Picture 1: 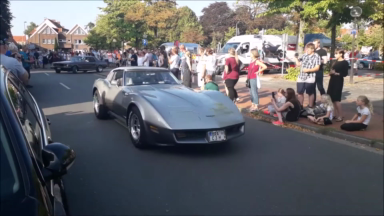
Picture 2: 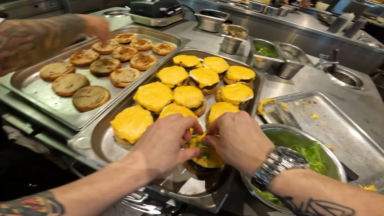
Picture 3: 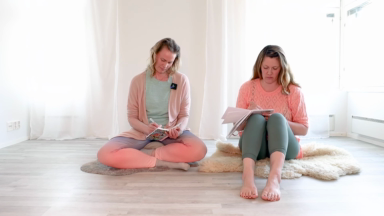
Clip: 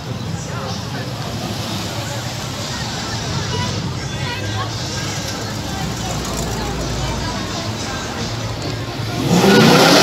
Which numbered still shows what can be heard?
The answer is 1